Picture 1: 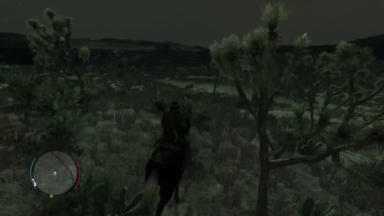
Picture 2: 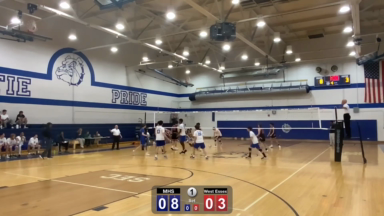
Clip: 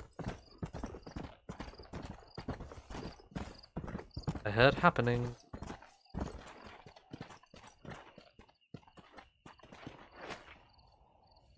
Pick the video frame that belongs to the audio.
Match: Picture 1